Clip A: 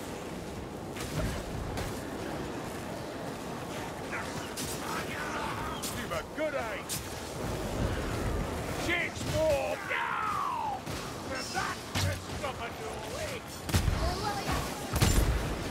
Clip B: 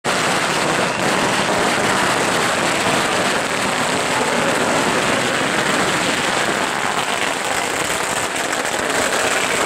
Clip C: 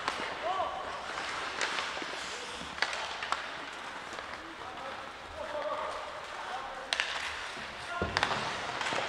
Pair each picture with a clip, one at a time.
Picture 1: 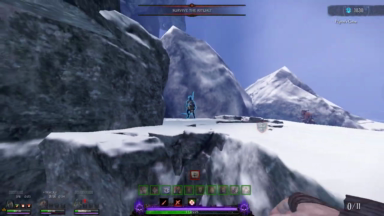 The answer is A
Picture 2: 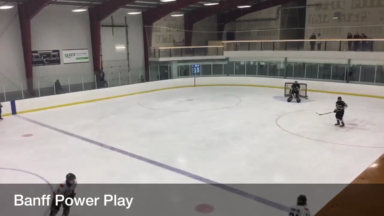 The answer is C